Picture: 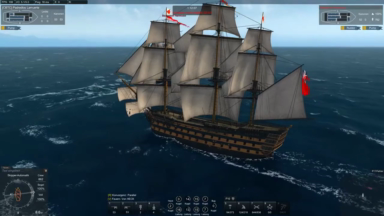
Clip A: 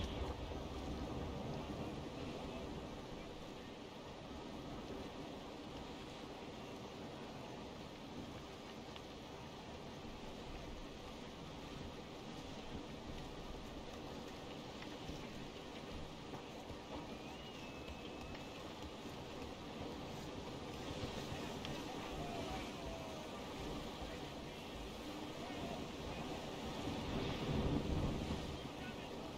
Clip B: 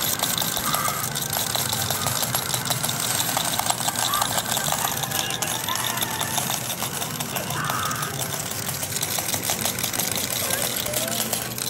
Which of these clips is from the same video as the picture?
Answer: A